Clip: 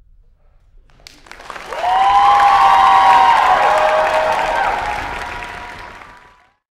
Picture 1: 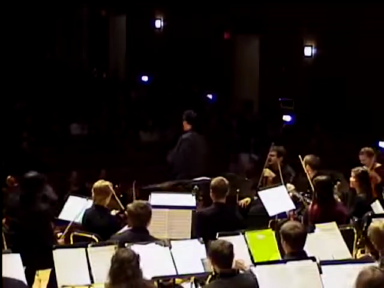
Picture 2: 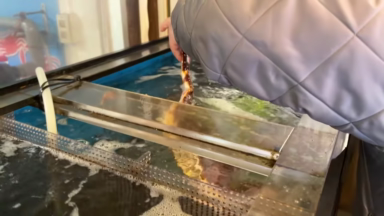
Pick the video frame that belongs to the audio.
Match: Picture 1